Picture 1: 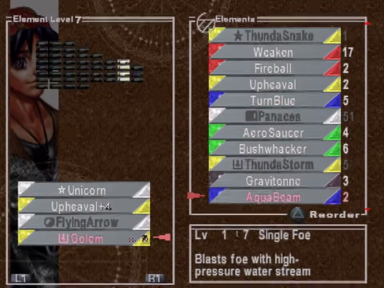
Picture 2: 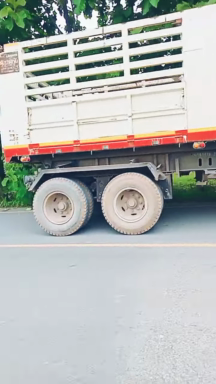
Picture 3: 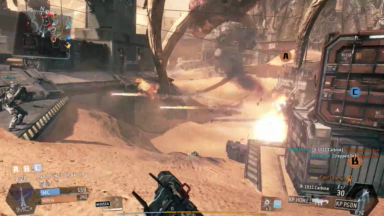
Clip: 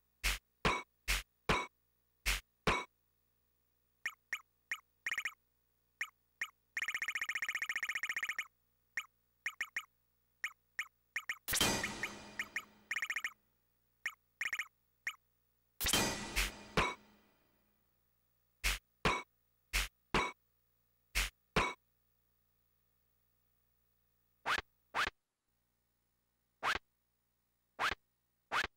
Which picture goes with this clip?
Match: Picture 1